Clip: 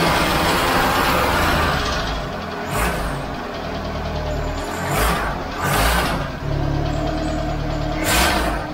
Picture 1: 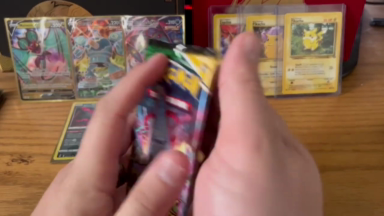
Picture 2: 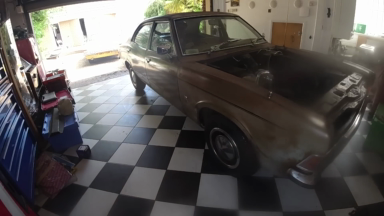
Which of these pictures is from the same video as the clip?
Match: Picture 2